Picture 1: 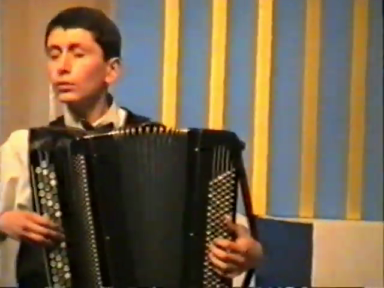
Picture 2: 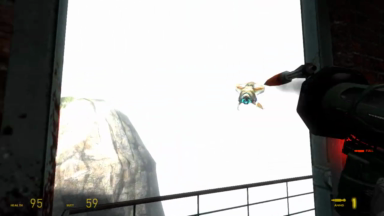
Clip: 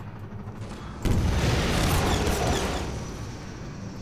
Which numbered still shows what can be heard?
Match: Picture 2